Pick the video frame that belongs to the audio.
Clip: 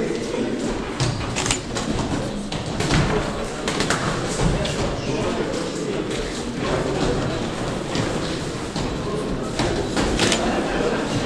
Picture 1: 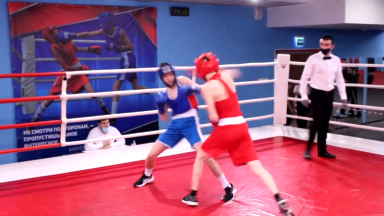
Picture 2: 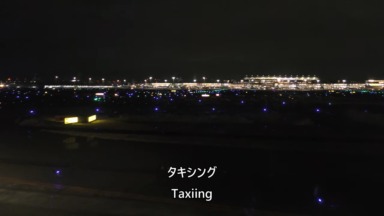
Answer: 1